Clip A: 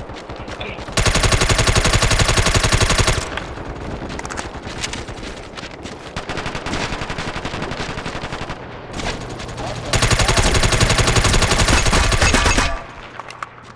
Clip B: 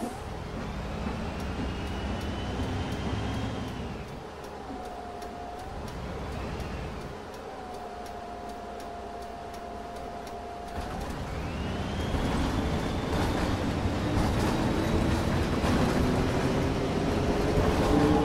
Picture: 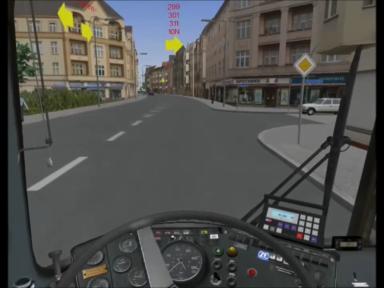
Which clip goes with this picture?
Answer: B